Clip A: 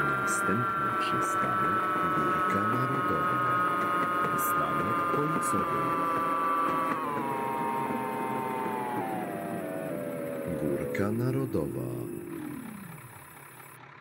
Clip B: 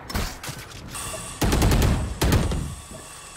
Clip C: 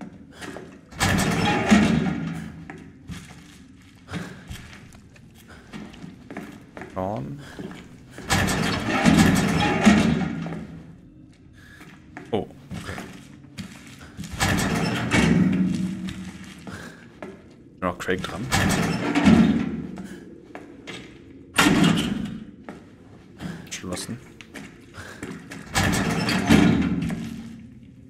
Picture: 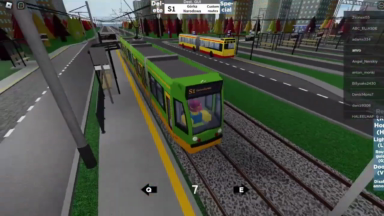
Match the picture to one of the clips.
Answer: A